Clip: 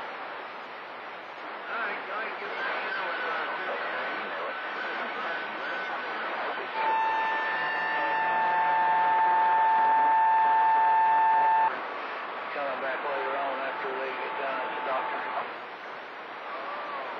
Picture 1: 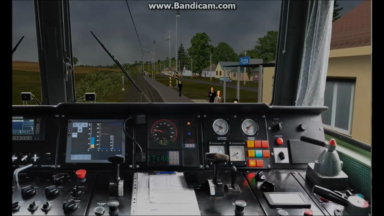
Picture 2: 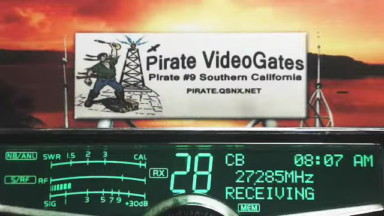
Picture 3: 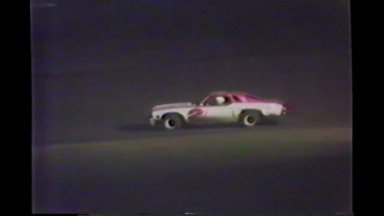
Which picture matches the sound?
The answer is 2